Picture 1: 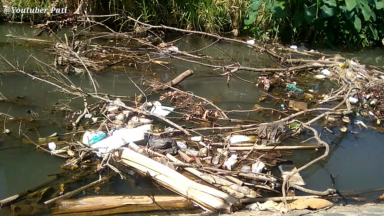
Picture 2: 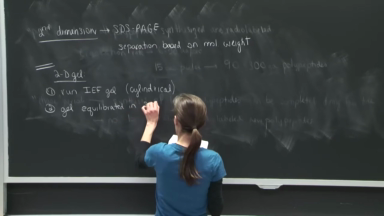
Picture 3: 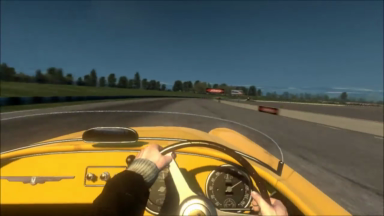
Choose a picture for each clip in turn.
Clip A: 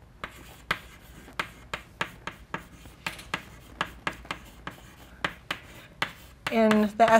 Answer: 2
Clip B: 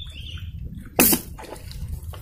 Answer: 1